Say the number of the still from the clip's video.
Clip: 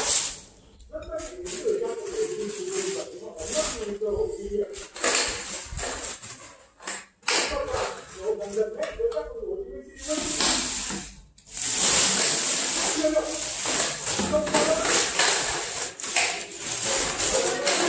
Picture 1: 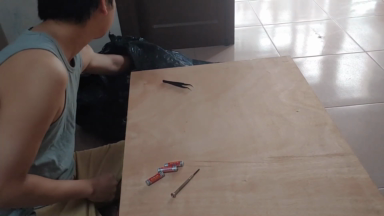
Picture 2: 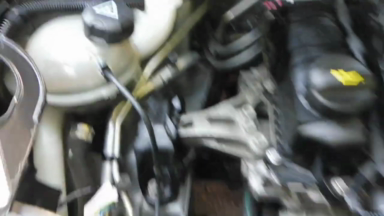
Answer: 1